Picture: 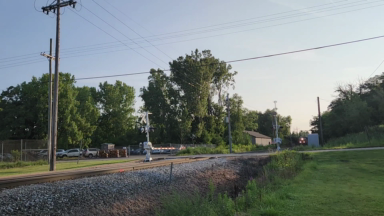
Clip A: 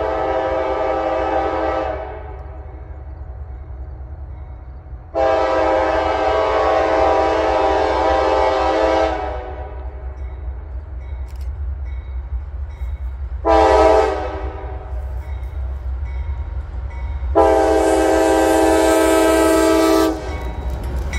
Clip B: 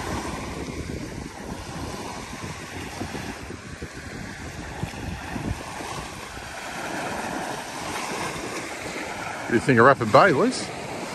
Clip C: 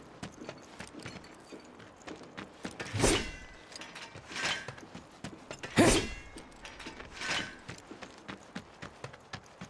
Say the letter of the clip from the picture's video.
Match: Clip A